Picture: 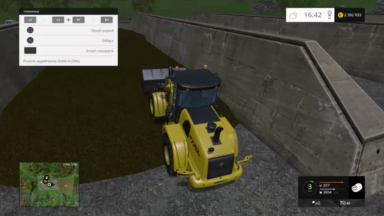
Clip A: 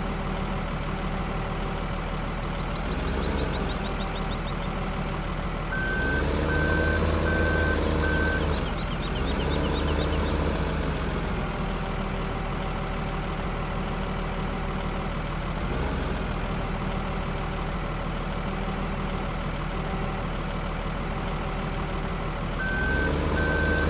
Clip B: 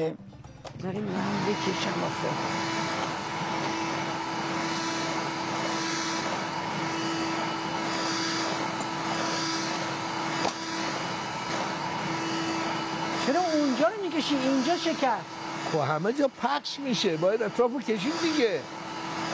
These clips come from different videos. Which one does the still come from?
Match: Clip A